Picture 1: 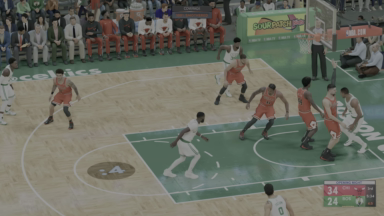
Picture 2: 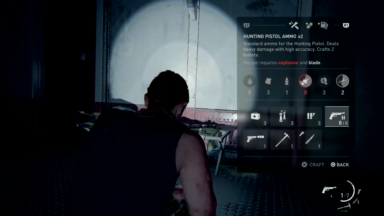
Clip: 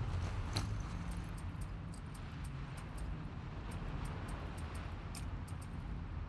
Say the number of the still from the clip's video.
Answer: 2